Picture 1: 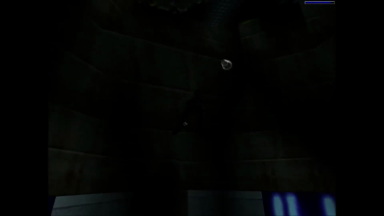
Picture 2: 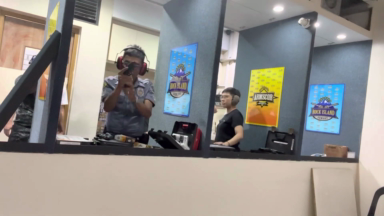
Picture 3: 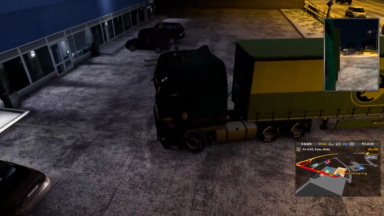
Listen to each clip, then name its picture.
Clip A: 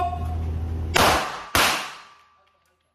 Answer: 2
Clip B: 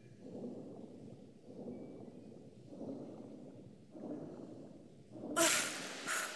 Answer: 1